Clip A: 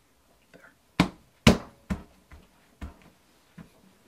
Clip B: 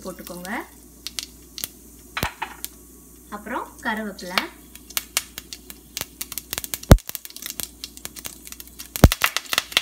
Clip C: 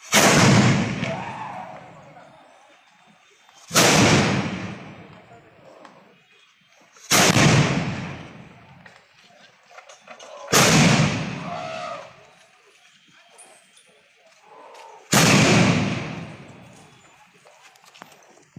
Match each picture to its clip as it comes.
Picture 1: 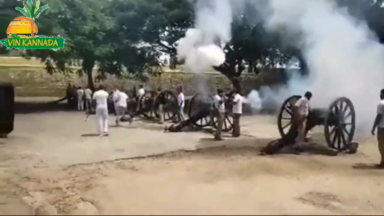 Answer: C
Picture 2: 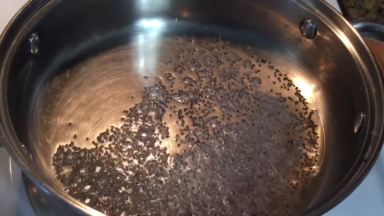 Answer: B